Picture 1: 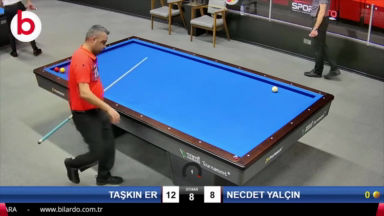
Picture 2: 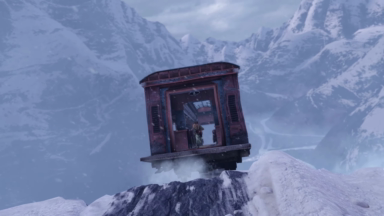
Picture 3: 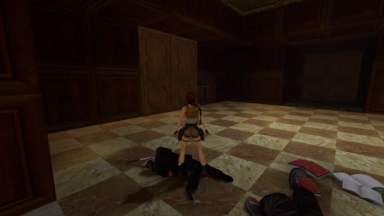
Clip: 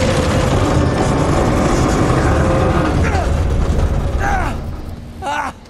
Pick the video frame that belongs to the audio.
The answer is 2